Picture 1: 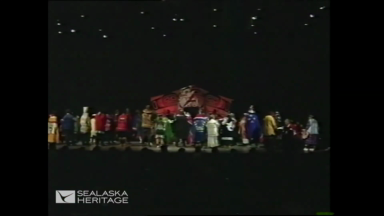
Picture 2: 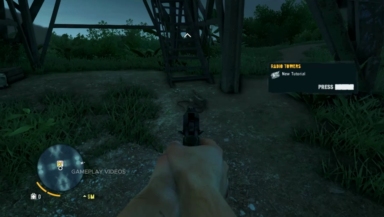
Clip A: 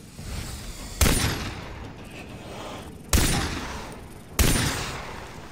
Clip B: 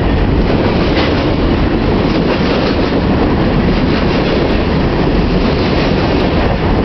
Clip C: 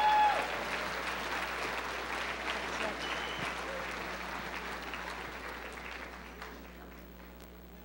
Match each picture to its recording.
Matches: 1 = C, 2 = A